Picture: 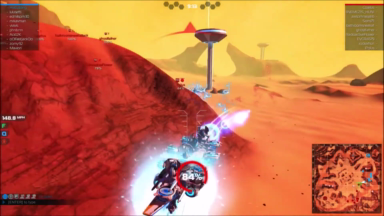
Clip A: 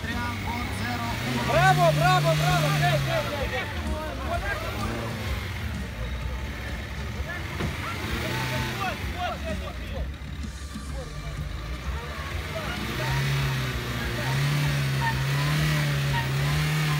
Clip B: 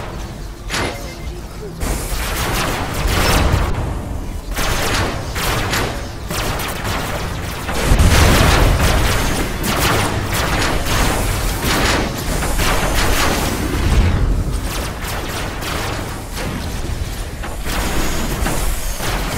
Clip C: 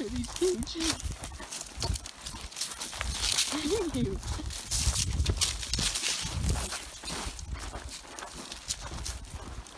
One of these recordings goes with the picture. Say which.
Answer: B